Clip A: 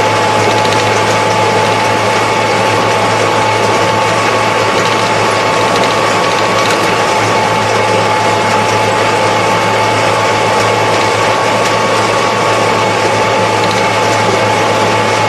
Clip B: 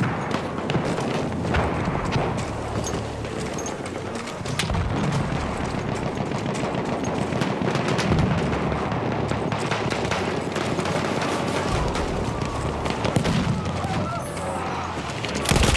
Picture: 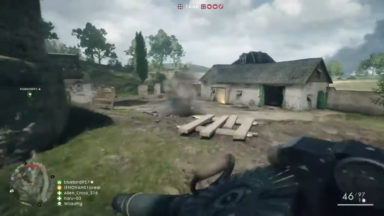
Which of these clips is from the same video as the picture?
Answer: B